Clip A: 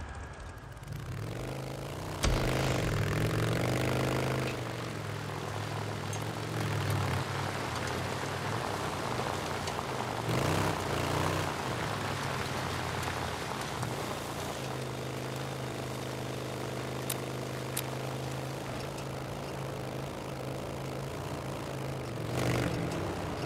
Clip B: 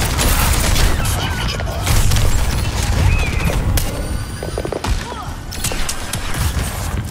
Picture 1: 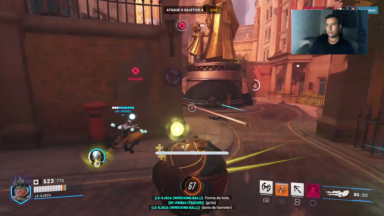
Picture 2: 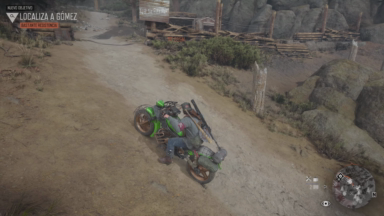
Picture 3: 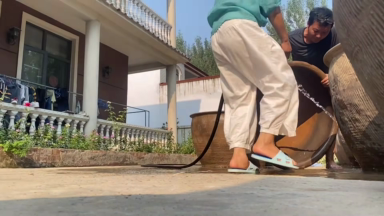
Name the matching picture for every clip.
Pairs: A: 2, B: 1